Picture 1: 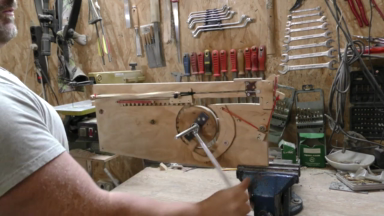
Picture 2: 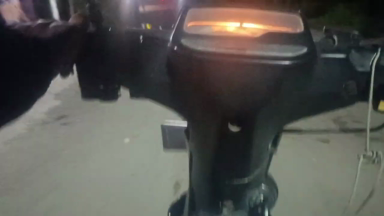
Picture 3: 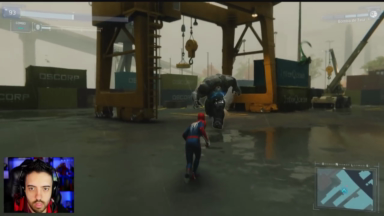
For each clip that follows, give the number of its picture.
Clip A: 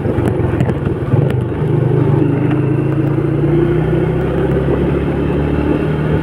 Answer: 2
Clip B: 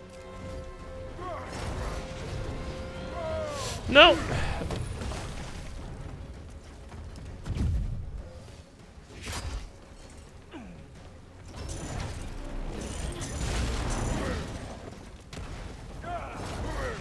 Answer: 3